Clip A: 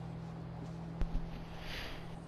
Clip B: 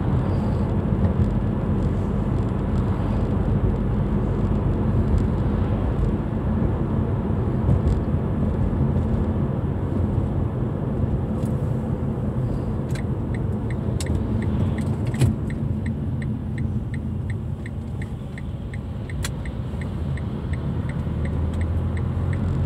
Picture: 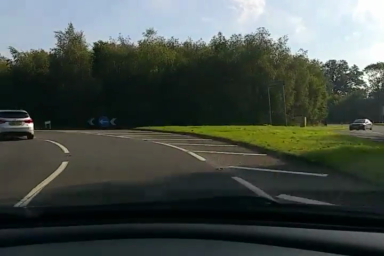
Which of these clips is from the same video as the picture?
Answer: B